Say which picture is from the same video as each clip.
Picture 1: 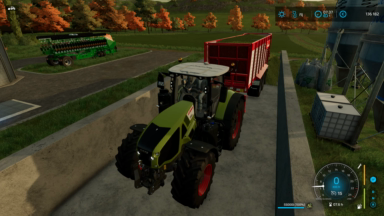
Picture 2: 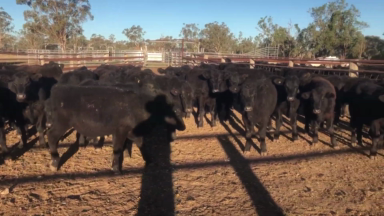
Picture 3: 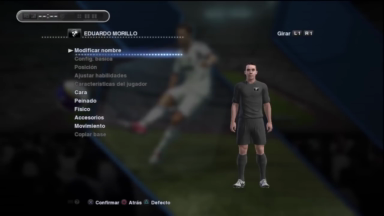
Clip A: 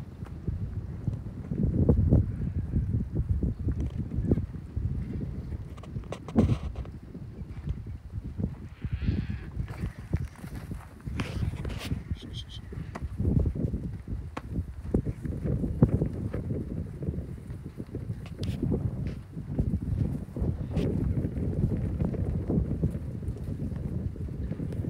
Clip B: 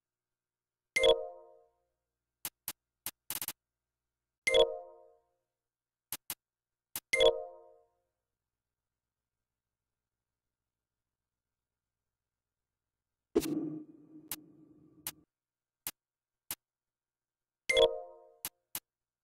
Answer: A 2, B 3